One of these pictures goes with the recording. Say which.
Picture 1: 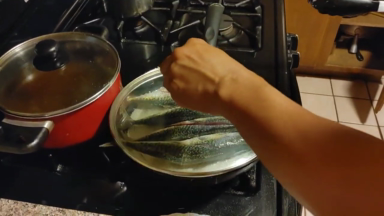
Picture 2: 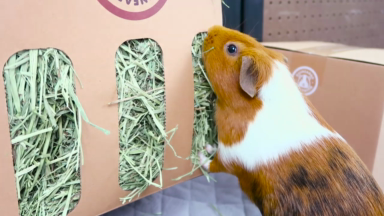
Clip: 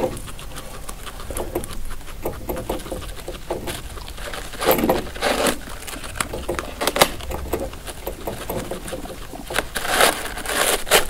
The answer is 2